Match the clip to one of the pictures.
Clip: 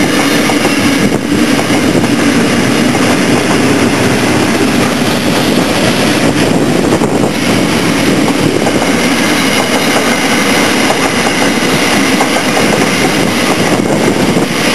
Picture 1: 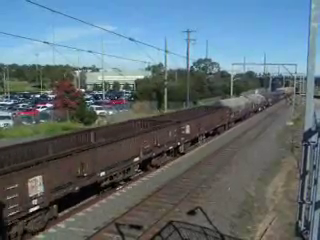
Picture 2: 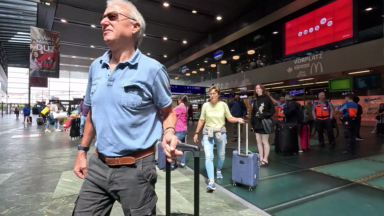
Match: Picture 1